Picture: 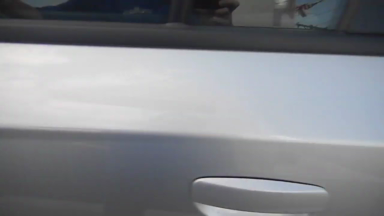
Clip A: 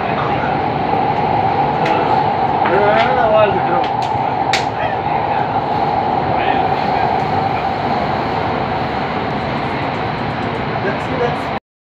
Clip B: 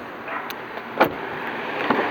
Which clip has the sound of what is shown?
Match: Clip B